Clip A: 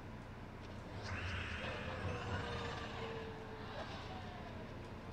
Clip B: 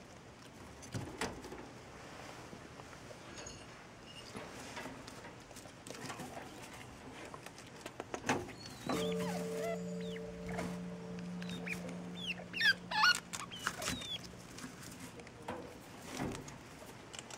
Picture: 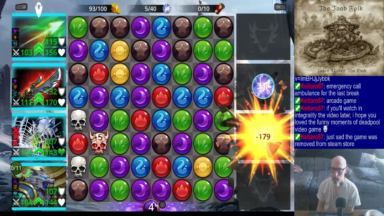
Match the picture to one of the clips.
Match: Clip A